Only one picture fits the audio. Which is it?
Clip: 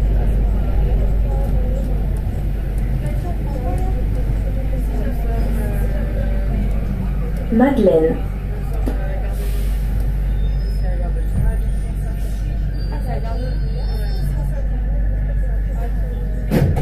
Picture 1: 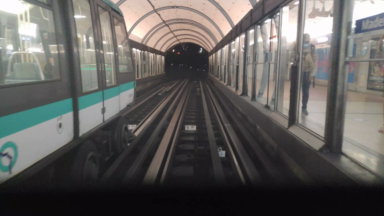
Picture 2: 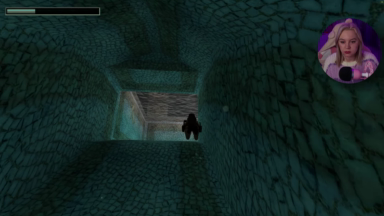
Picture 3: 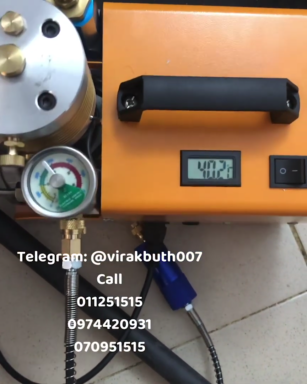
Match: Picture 1